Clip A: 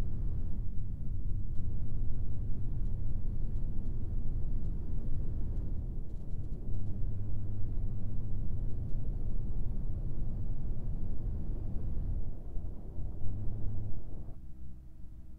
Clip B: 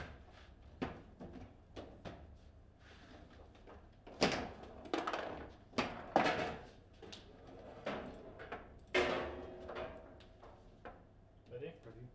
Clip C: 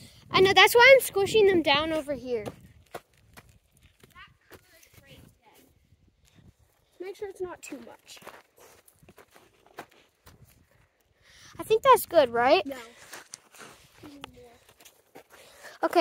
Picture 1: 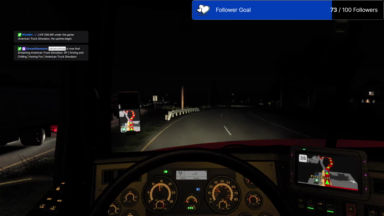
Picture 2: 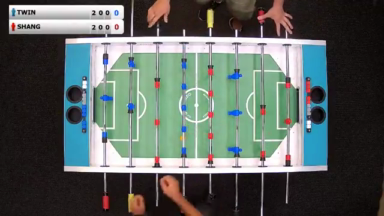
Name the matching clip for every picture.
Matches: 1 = A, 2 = B